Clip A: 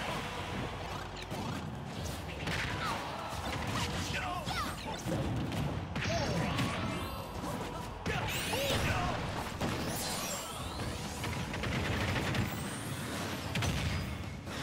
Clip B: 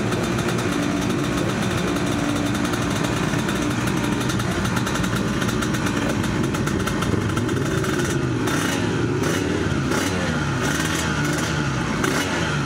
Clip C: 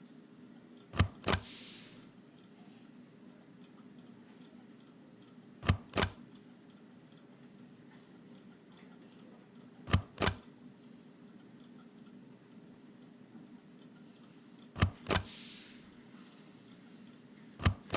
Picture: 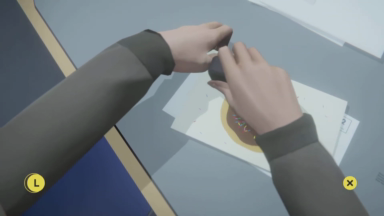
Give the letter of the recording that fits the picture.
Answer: C